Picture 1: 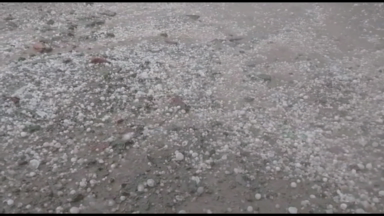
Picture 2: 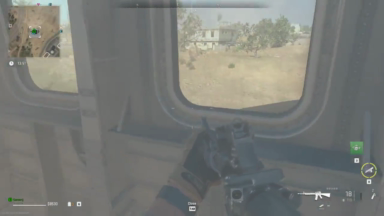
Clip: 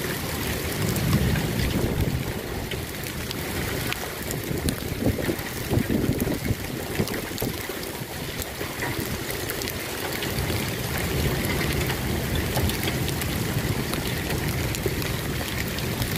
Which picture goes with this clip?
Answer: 1